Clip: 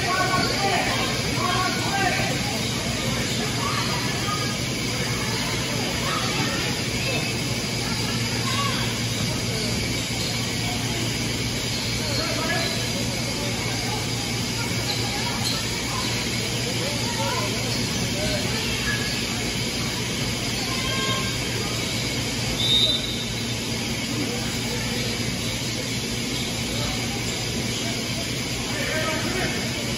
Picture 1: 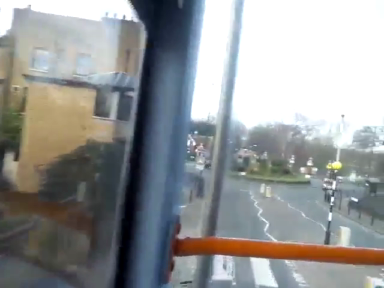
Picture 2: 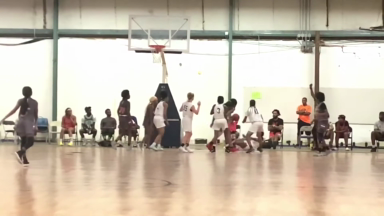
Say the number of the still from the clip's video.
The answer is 2